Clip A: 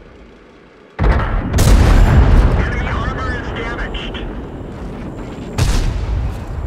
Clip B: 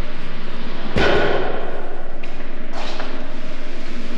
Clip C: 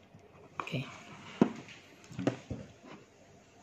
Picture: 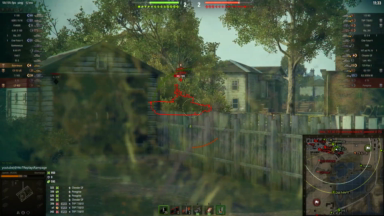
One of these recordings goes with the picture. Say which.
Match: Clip A